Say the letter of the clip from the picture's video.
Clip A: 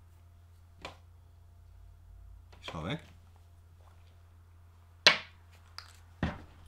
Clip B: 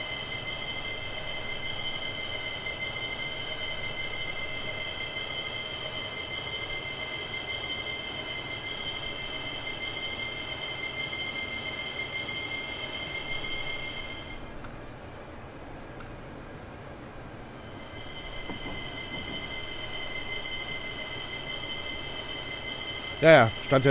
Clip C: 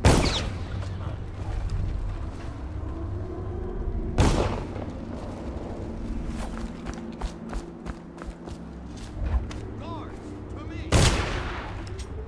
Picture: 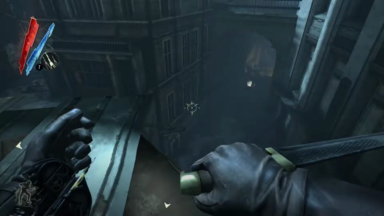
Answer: C